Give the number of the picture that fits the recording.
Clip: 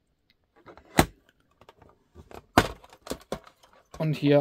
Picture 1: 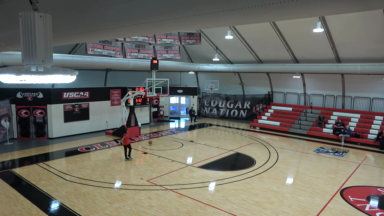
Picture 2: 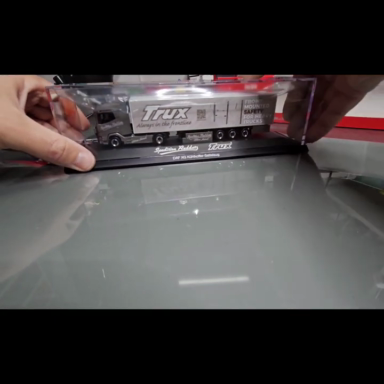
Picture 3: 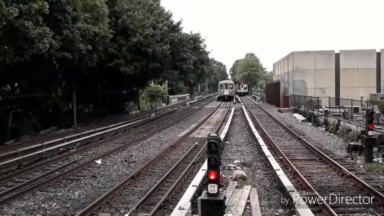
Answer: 2